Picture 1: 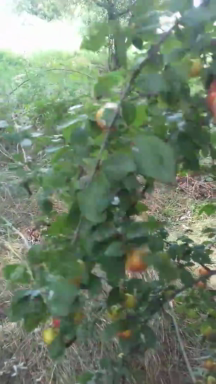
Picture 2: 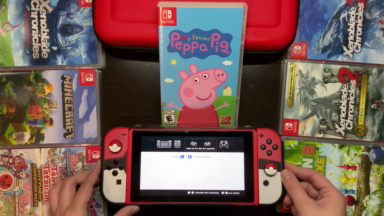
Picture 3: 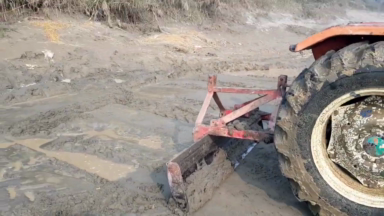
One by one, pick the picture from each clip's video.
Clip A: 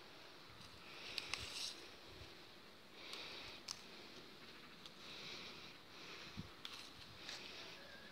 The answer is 1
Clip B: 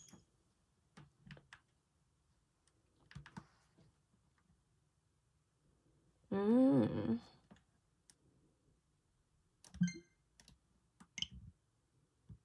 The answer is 2